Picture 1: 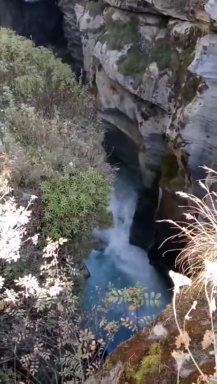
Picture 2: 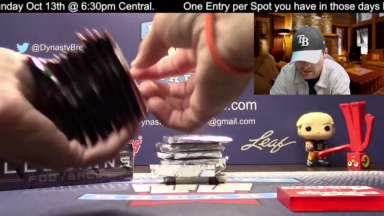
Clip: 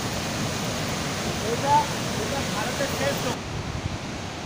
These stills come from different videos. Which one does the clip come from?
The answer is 1